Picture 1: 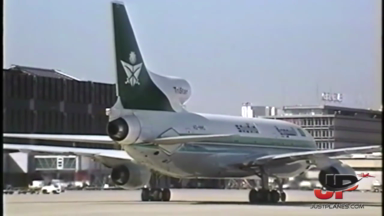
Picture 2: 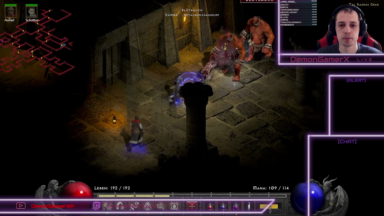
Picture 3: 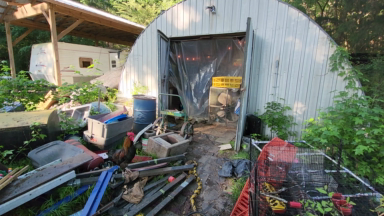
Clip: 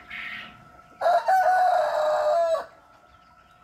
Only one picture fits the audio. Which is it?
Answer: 3